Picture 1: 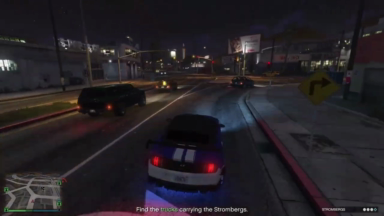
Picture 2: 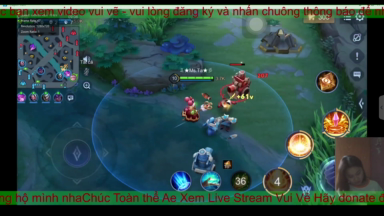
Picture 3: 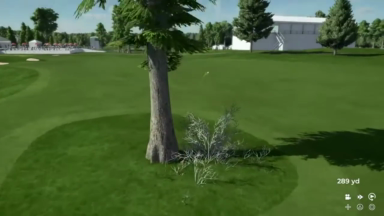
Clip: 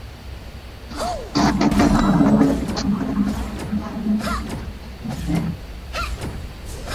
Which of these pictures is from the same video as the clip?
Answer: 2